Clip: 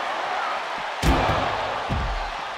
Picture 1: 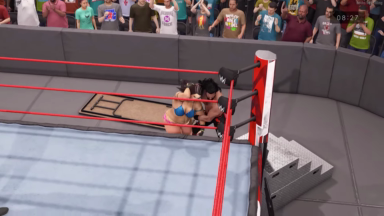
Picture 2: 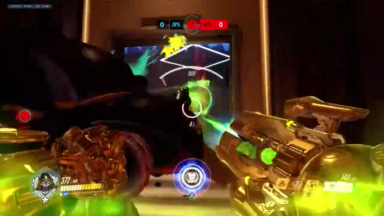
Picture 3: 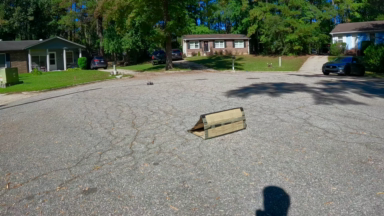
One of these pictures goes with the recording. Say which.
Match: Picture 1